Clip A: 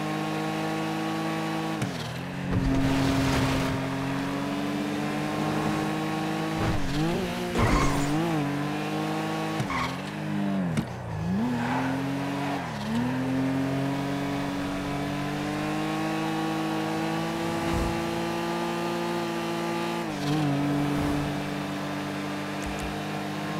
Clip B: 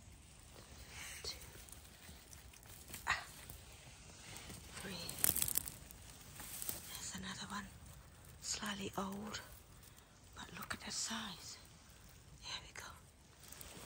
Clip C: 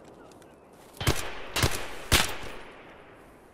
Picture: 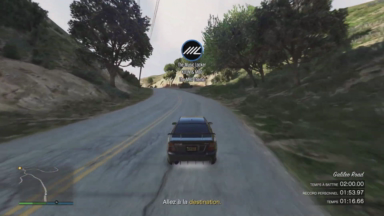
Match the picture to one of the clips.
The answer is A